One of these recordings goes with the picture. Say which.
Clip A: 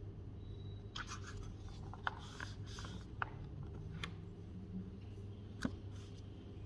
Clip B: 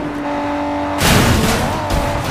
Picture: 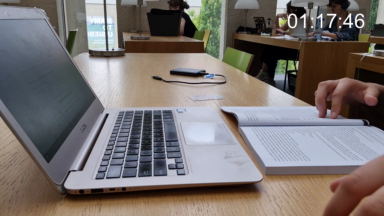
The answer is A